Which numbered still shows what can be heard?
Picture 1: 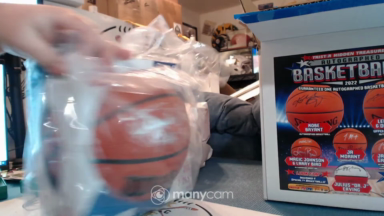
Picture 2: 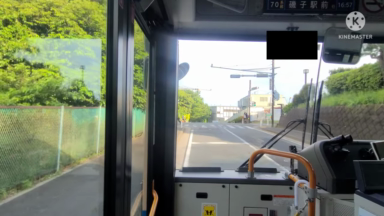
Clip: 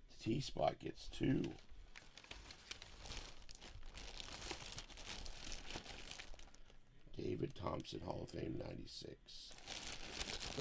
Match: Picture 1